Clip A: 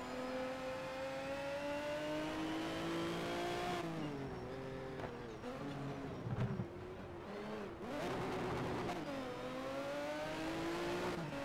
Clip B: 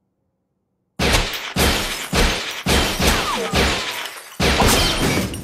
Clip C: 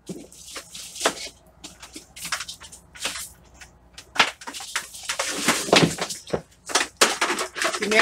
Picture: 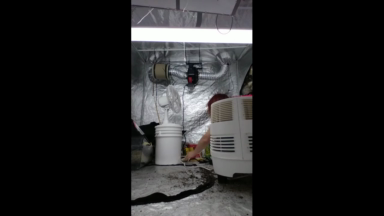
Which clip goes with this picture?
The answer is C